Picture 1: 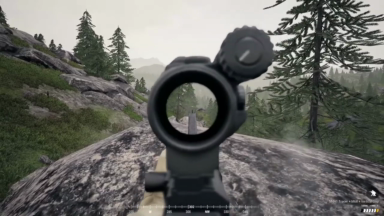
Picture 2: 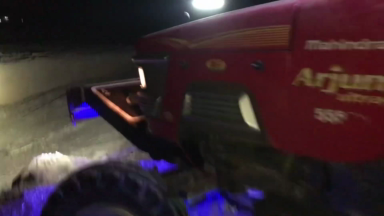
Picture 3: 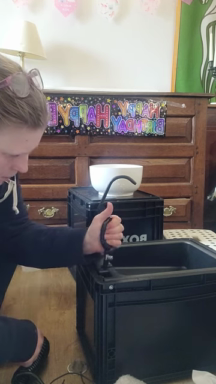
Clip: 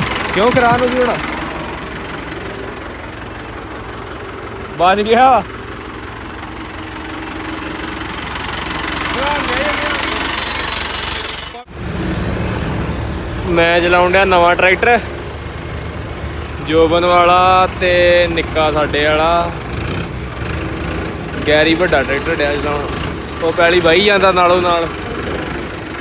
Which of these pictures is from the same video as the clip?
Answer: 2